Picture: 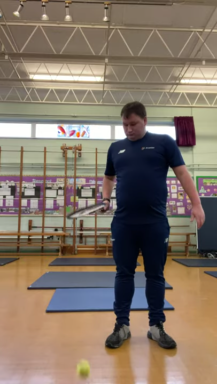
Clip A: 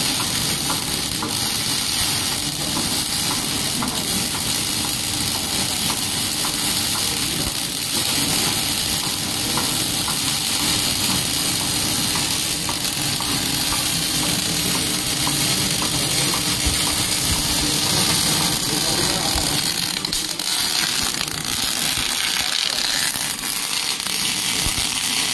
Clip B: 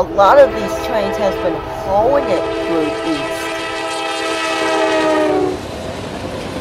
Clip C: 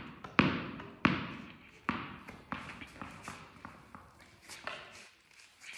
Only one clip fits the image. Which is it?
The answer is C